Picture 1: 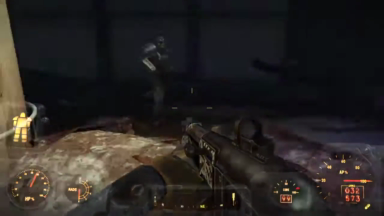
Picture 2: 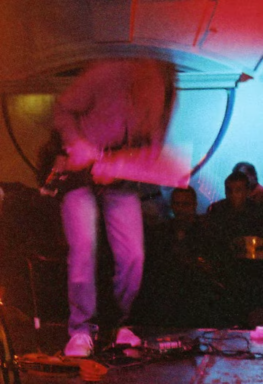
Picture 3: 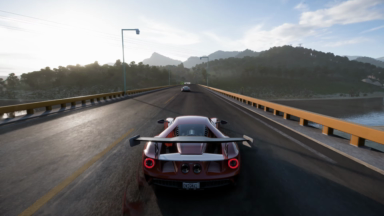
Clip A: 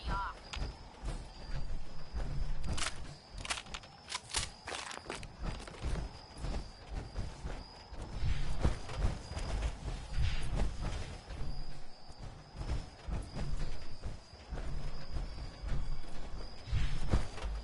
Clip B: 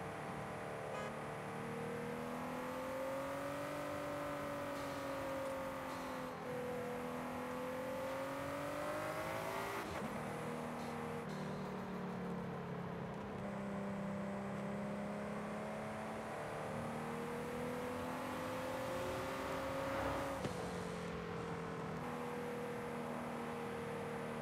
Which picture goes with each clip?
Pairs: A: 1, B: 3